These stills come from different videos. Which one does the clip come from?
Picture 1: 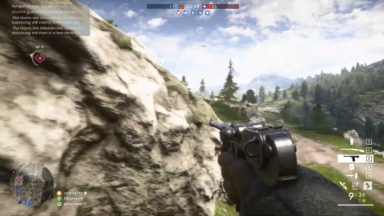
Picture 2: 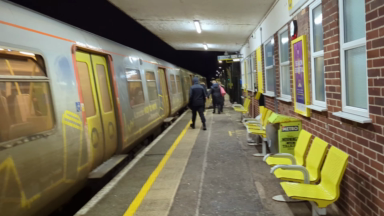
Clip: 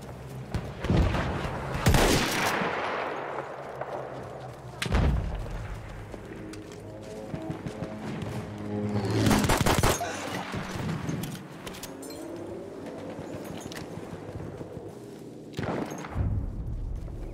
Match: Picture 1